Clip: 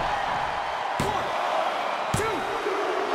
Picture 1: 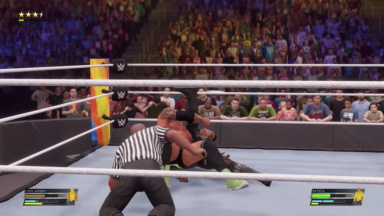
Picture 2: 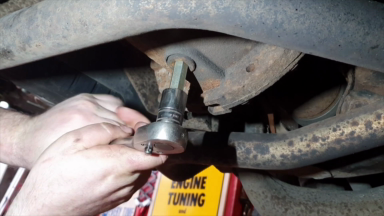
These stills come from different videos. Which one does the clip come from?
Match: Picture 1